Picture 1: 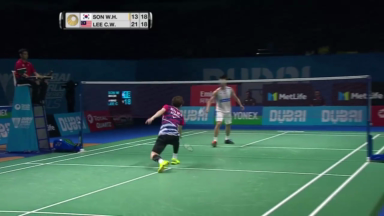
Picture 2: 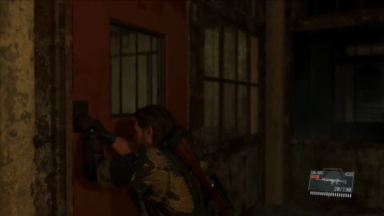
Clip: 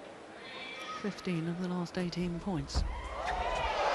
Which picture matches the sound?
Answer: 1